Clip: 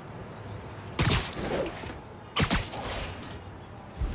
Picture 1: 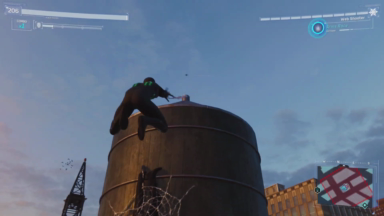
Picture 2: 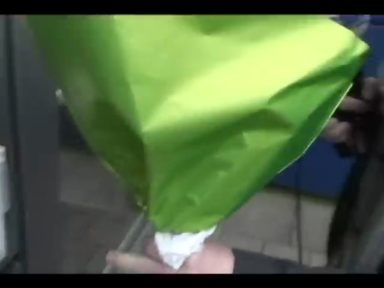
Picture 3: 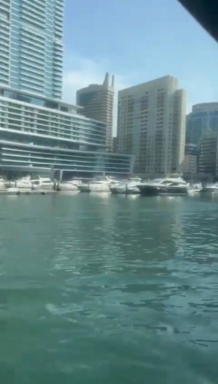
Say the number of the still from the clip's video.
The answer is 1